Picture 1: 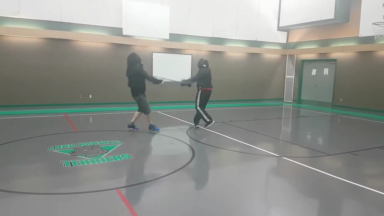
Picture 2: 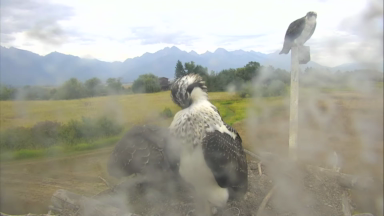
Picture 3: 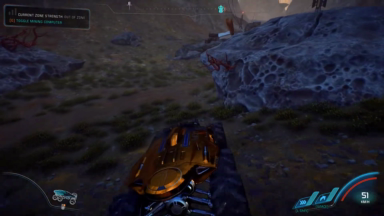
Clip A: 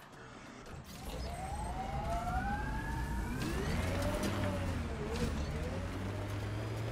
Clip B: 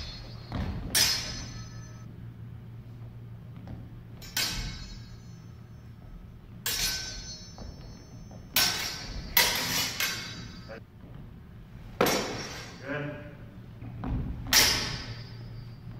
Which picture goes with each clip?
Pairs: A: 3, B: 1